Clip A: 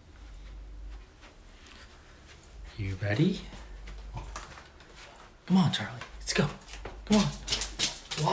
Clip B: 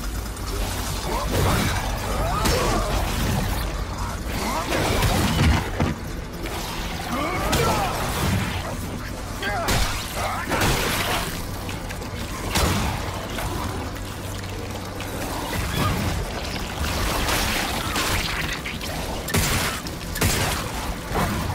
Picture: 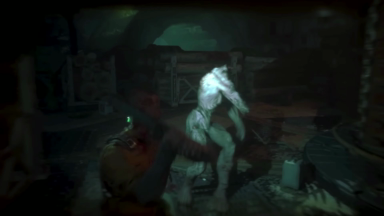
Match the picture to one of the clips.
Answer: B